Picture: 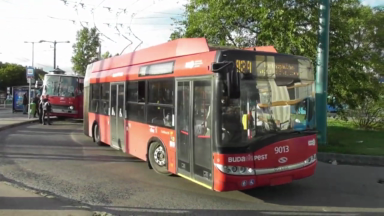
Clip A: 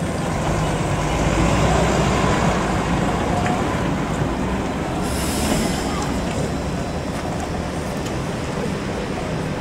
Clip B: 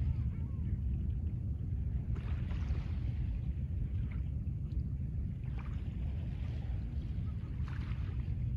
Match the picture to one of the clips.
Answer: A